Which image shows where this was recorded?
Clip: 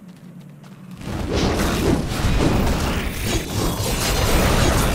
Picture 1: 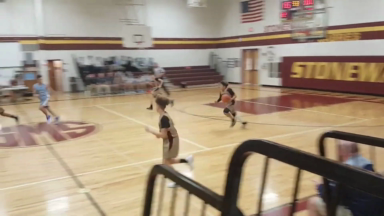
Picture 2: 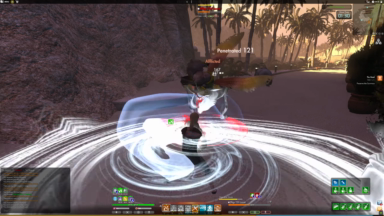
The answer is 2